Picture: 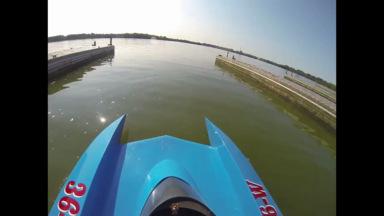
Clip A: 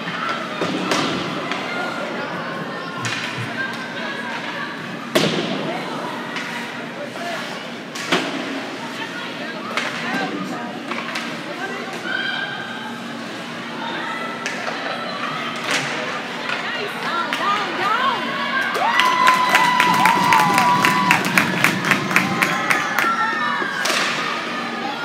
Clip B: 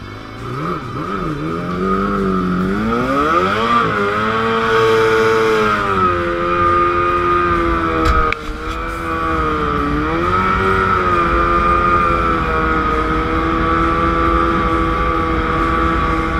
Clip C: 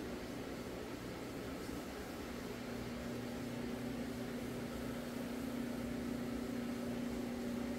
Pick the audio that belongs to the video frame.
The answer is B